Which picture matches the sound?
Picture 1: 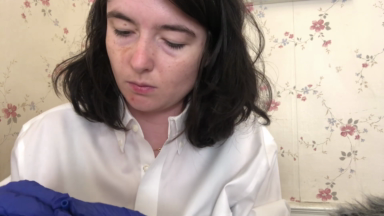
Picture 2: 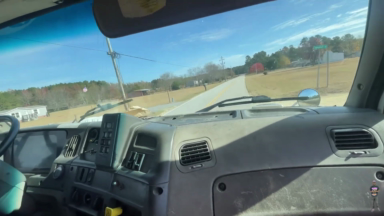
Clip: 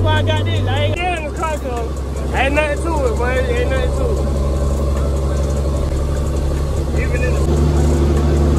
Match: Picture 2